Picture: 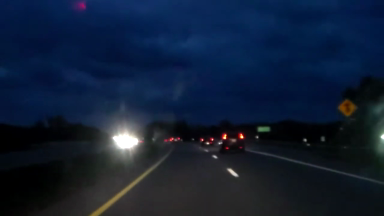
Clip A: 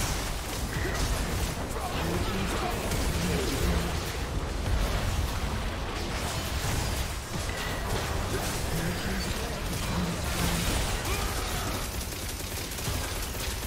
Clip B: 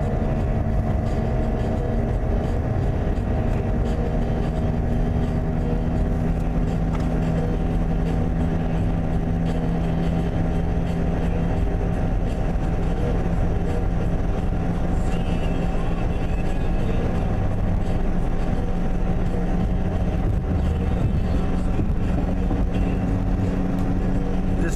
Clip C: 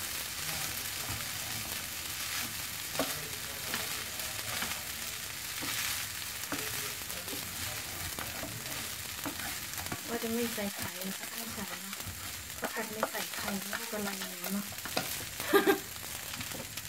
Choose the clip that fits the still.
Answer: B